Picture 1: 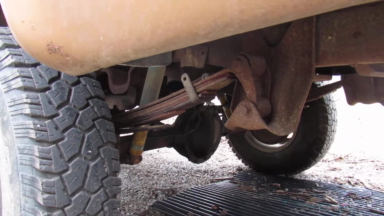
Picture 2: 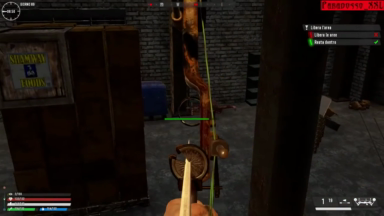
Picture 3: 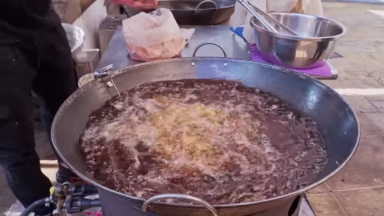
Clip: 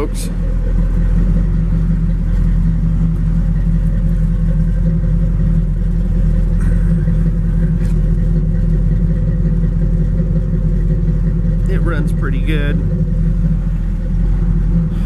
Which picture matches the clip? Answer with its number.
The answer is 1